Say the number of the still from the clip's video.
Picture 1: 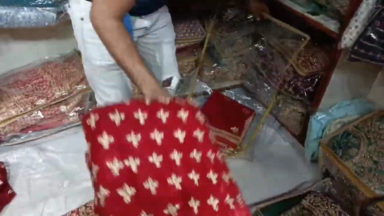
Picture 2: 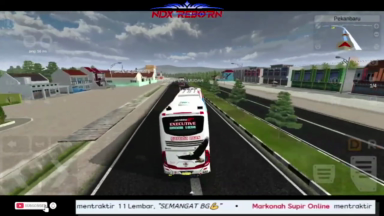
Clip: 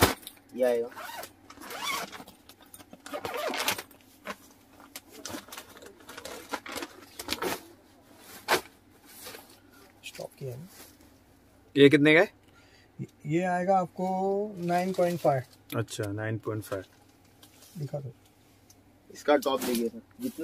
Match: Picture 1